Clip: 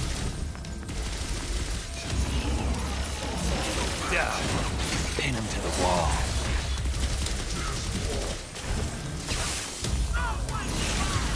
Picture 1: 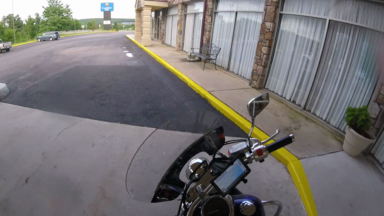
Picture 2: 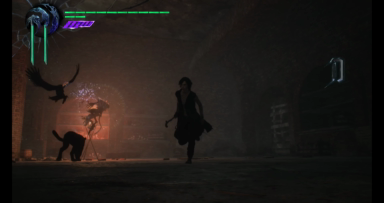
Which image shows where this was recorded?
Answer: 2